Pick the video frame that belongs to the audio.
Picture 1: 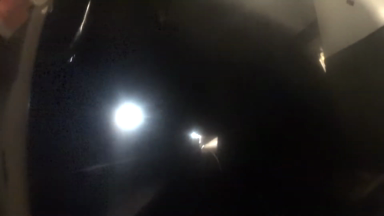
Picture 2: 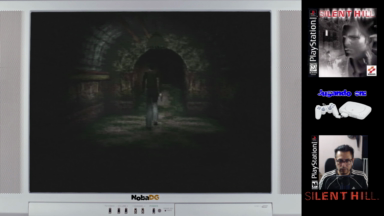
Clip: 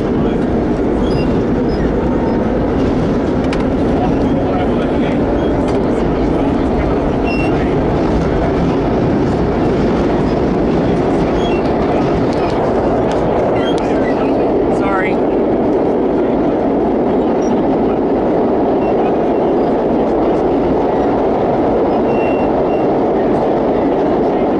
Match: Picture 1